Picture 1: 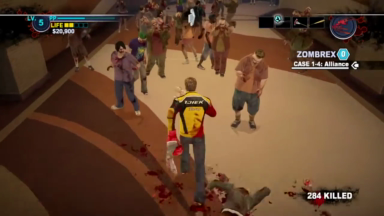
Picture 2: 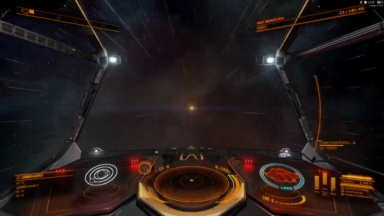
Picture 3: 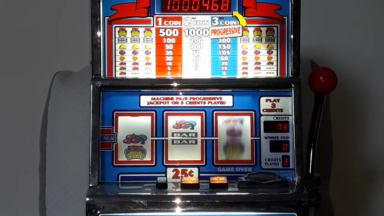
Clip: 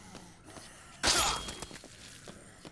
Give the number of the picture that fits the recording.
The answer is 1